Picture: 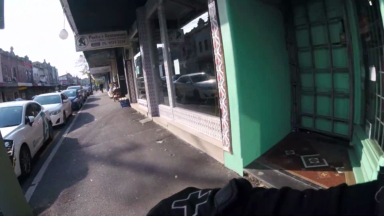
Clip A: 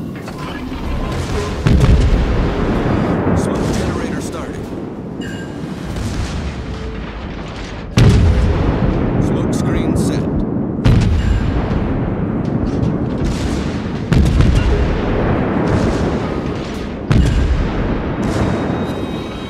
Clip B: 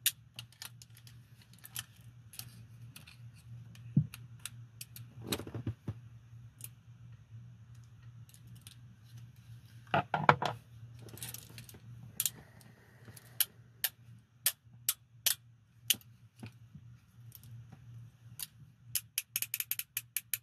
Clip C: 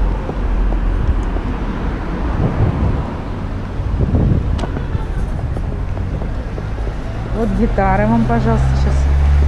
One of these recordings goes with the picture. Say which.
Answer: C